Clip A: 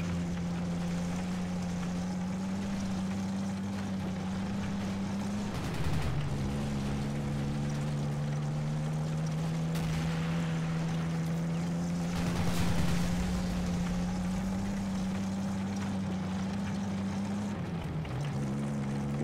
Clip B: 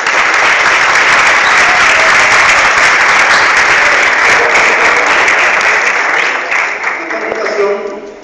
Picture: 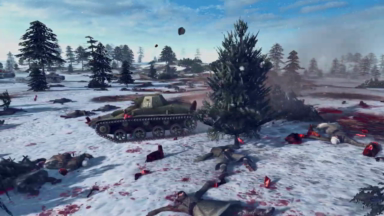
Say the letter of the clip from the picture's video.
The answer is A